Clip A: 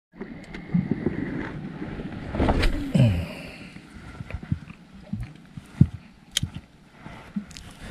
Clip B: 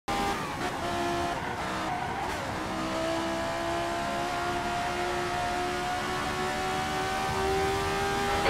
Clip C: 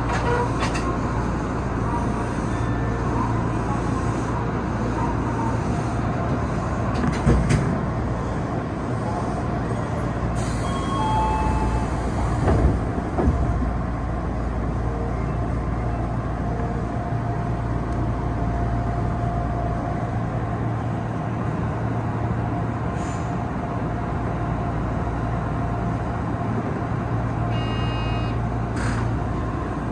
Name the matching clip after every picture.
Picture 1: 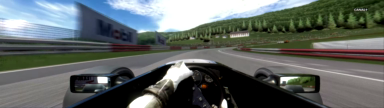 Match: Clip B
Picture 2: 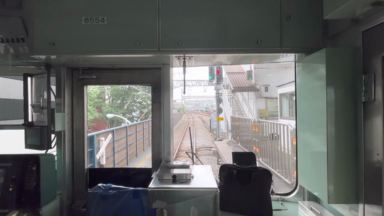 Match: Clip C